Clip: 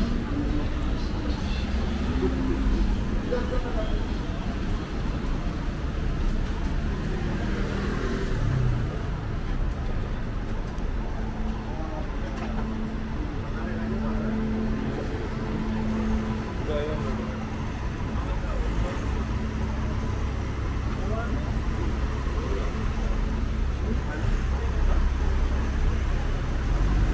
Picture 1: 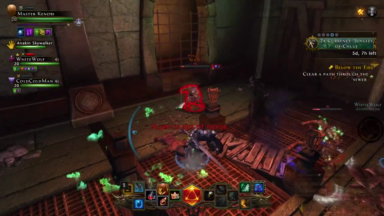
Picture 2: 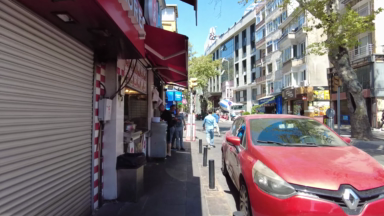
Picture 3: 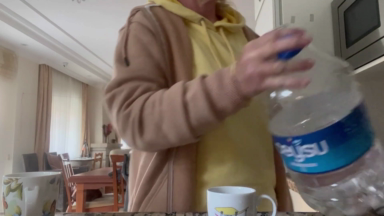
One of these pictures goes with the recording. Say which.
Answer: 2